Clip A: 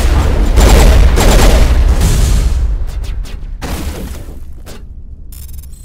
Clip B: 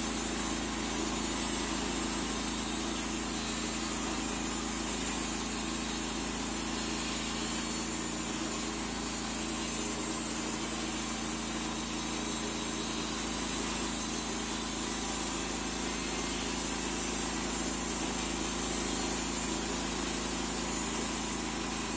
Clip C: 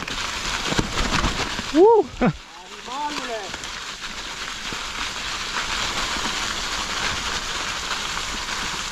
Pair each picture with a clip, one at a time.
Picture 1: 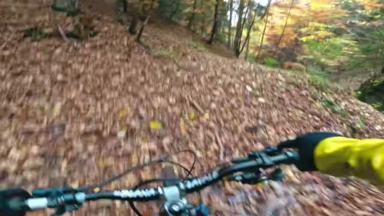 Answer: C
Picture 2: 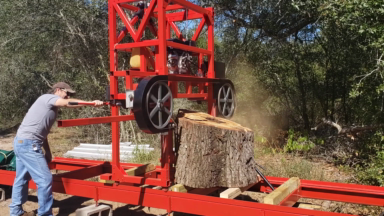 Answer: B